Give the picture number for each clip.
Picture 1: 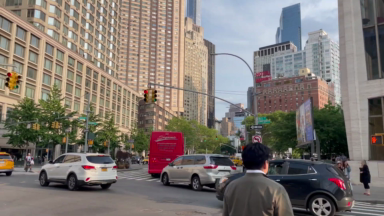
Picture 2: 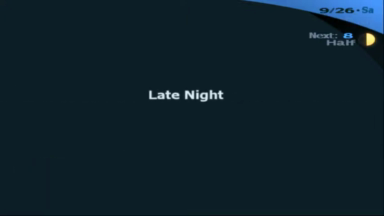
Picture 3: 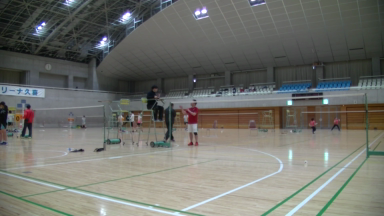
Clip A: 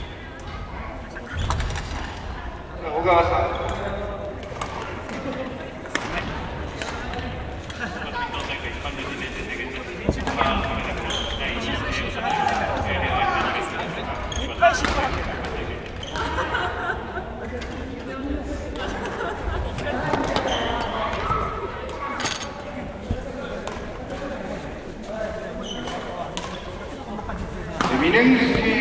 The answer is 3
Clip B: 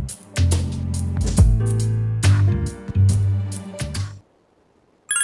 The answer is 2